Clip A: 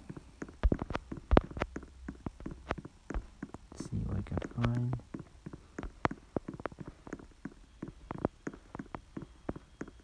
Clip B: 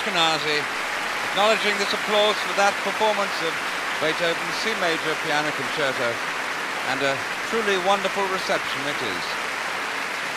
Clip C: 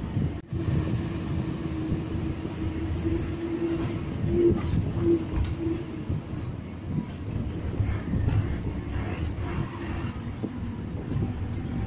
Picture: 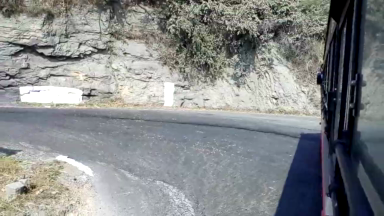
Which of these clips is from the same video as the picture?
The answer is C